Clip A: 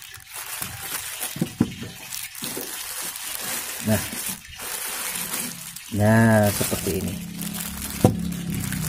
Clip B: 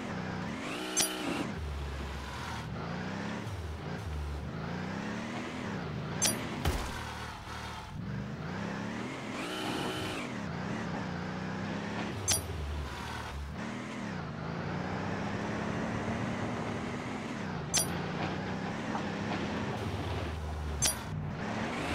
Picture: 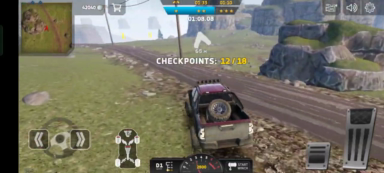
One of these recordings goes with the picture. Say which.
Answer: B